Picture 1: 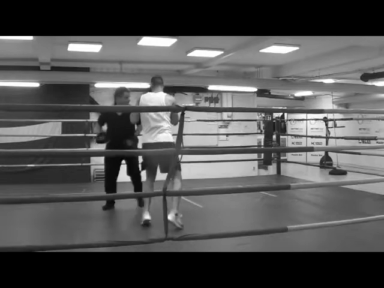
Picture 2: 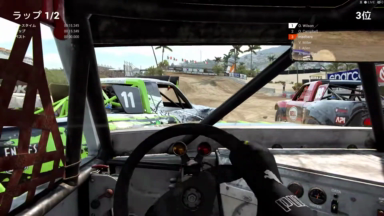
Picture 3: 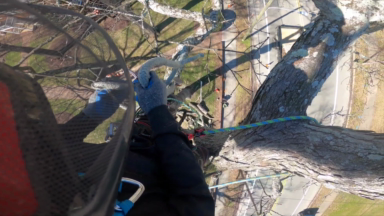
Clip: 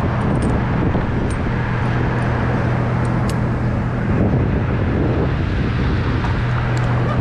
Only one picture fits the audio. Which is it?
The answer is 3